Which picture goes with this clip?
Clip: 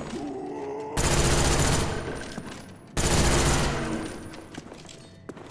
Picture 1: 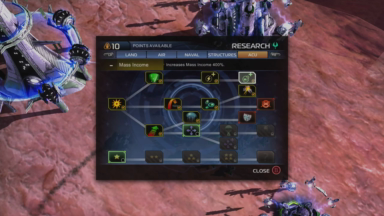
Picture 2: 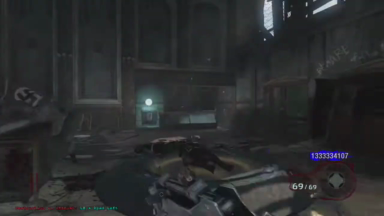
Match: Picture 2